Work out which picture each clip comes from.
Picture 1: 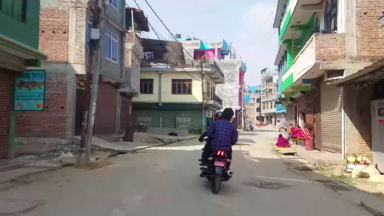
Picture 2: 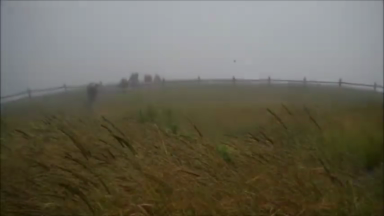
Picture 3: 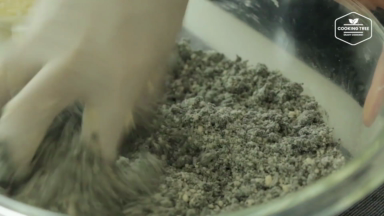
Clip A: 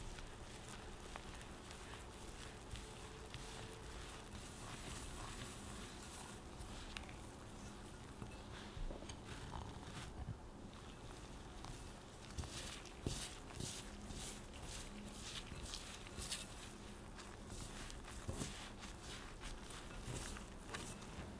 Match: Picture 3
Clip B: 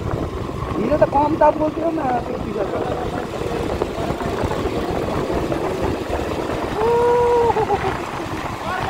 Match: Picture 1